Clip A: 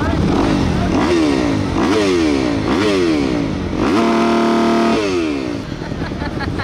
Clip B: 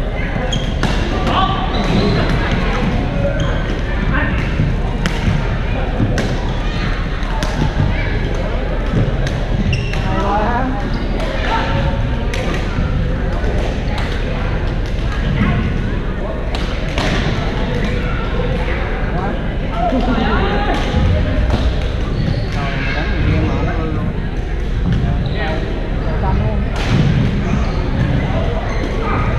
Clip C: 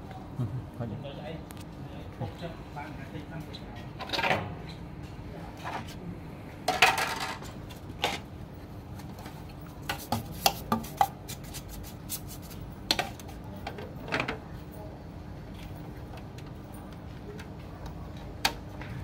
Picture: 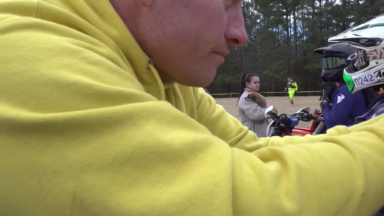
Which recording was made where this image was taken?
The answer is A